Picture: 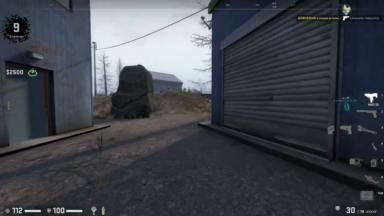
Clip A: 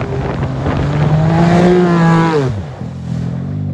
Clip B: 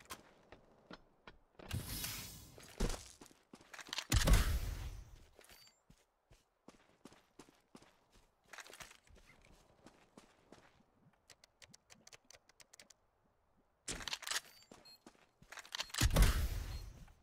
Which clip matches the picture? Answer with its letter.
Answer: B